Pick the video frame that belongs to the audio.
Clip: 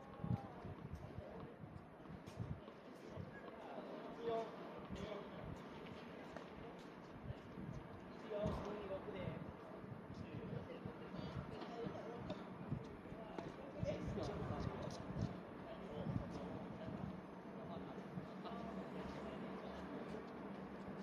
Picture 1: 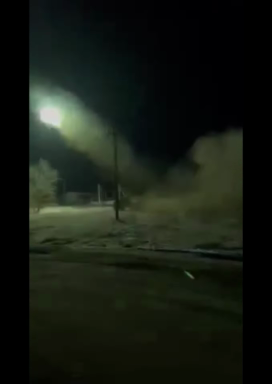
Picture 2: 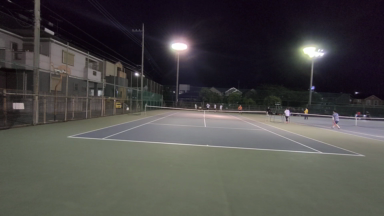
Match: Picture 2